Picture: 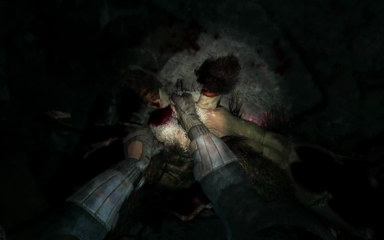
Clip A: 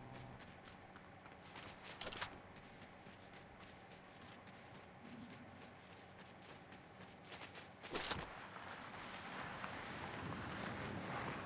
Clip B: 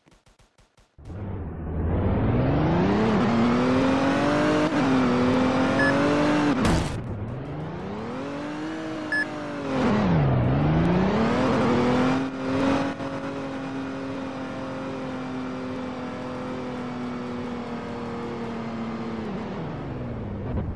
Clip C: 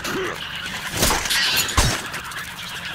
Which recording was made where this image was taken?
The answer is C